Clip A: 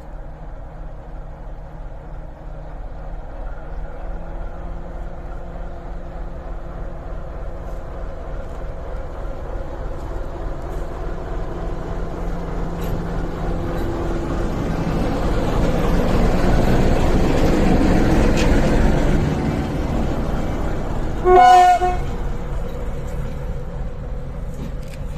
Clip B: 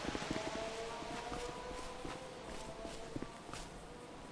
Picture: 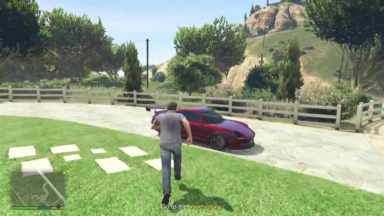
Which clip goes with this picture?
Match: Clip B